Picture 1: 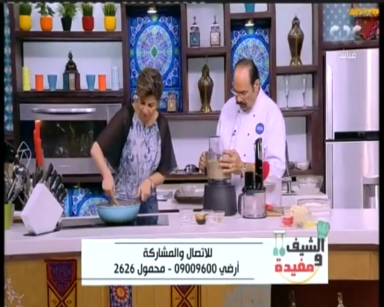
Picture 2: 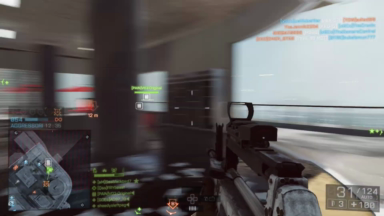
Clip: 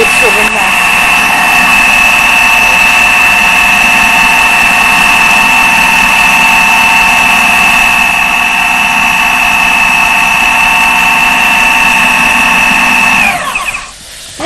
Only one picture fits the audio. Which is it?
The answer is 1